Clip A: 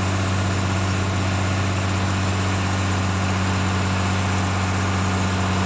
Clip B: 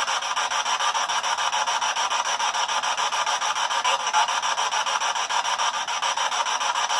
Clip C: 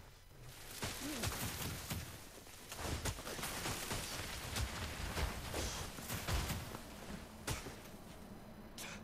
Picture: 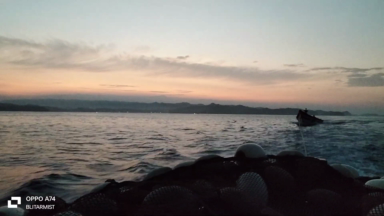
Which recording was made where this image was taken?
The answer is A